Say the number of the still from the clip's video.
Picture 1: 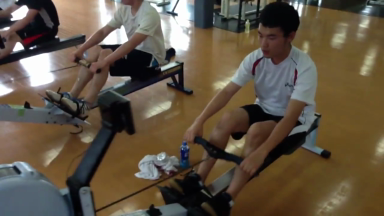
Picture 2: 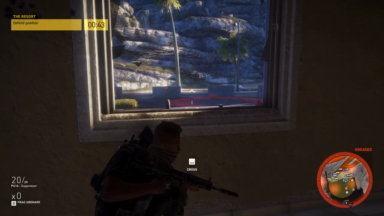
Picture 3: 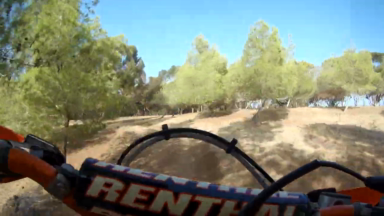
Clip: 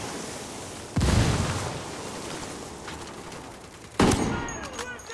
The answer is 2